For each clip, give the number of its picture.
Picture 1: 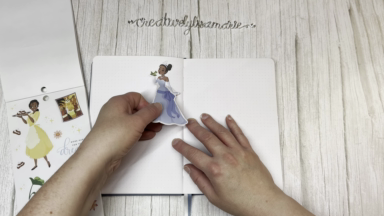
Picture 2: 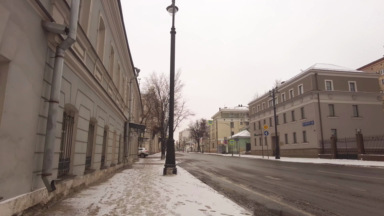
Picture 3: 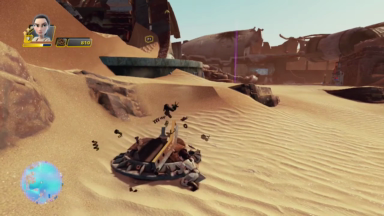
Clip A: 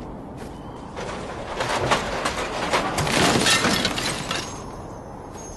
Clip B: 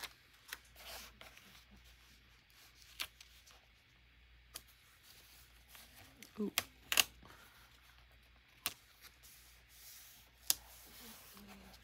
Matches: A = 3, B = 1